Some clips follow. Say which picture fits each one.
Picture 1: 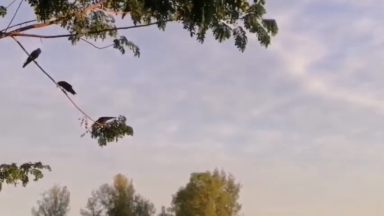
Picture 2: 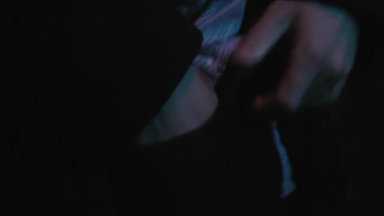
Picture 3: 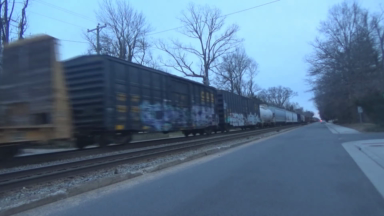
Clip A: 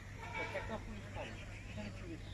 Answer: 1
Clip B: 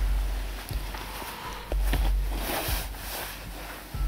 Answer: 2